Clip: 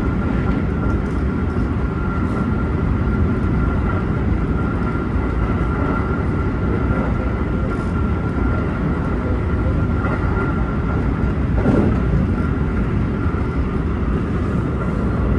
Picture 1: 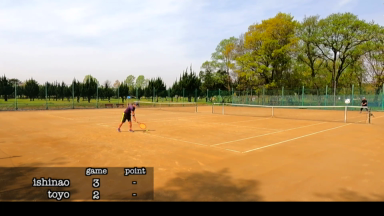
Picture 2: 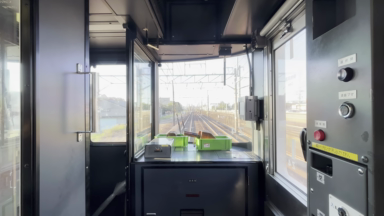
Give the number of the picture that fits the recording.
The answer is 2